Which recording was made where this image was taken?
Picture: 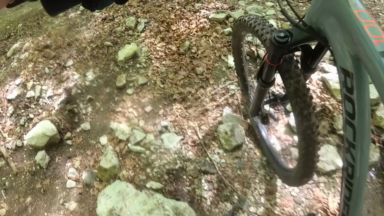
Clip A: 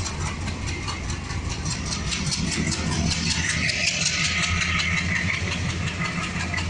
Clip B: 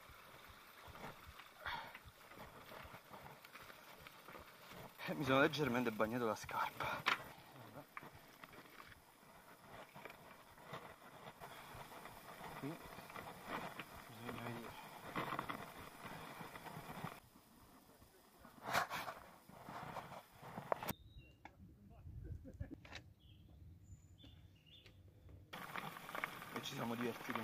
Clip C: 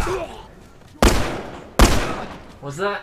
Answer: B